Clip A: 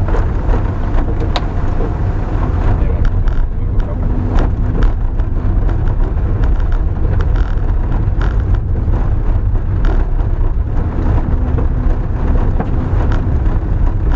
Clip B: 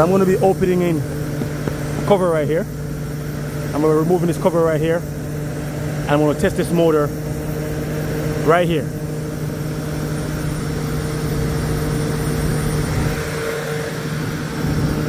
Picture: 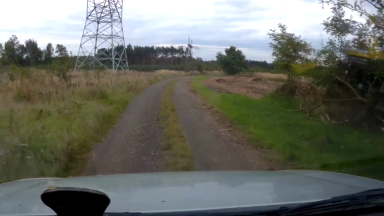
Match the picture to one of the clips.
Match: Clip A